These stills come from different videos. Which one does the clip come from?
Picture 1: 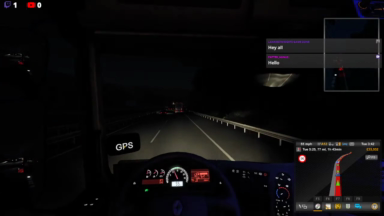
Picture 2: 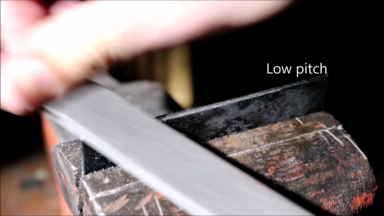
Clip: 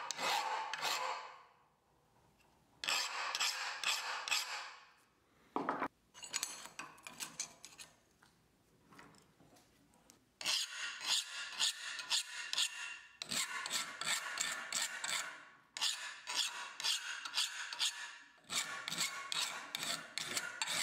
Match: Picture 2